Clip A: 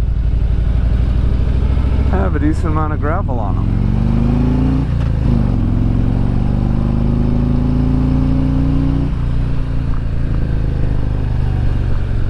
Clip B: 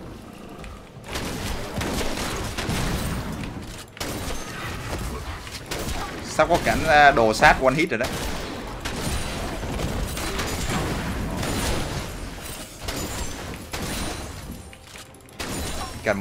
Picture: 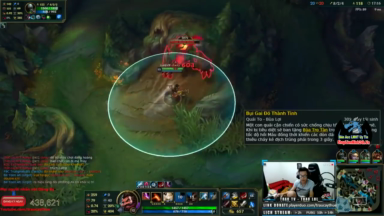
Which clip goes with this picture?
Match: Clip B